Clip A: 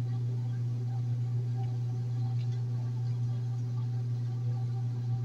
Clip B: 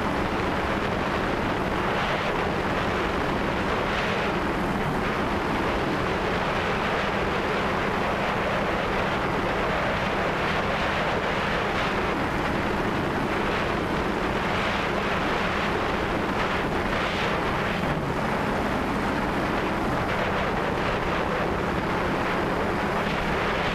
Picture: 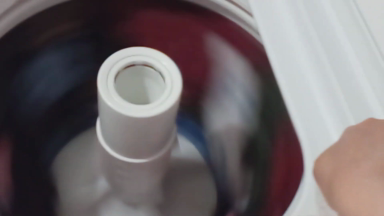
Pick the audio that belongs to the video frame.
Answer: A